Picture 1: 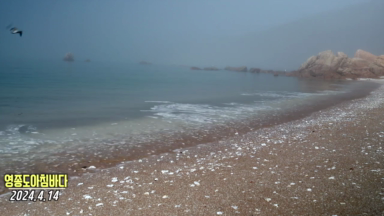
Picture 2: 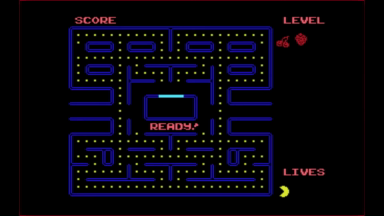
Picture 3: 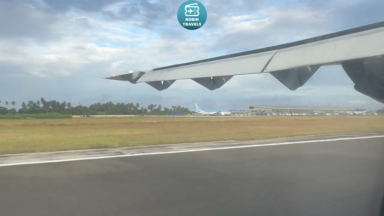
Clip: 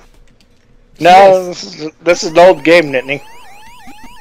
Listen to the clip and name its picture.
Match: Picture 2